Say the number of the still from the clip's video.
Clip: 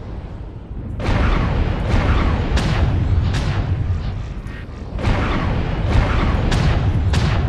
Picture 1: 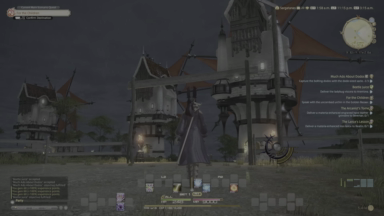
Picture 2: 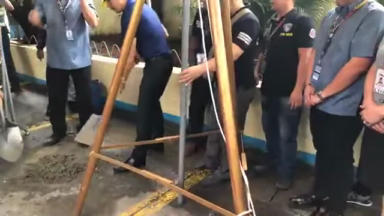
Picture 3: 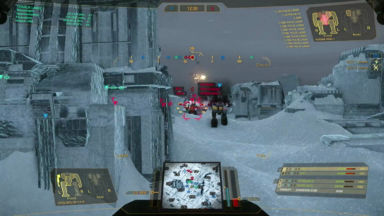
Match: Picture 3